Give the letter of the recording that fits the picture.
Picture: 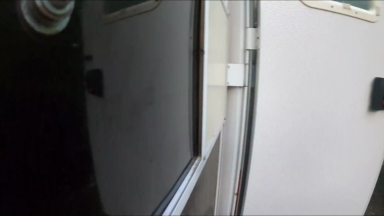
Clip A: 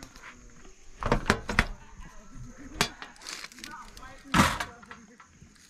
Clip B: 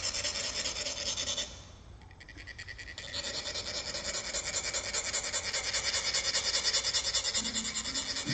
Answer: A